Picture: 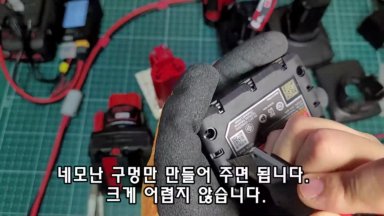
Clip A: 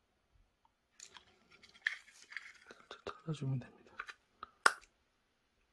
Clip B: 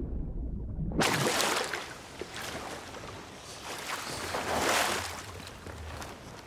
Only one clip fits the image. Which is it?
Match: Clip A